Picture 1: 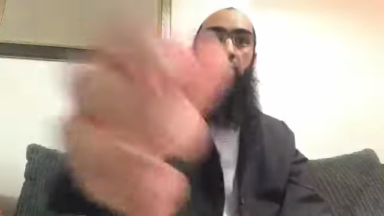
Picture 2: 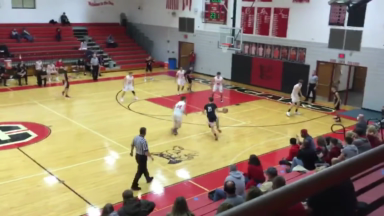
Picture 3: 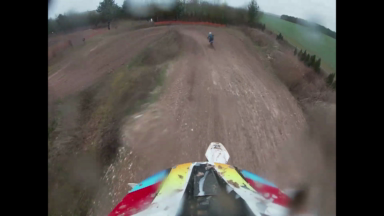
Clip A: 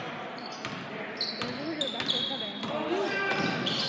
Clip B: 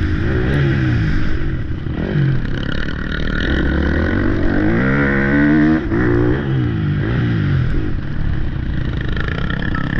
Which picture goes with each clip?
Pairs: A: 2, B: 3